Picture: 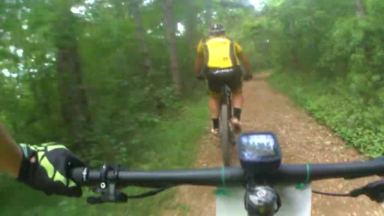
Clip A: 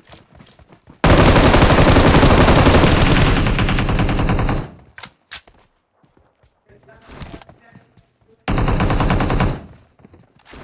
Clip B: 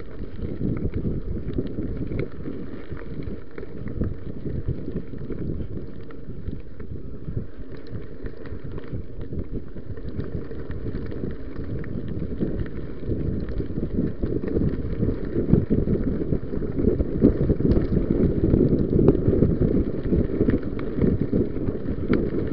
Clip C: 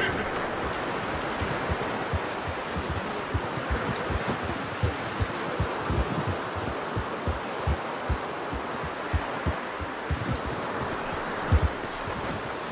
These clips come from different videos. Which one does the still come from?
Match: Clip B